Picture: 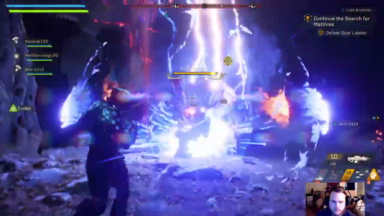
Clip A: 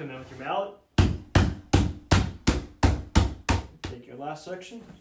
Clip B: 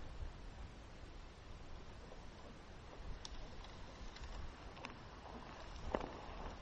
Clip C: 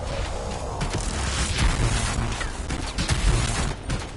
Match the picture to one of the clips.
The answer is C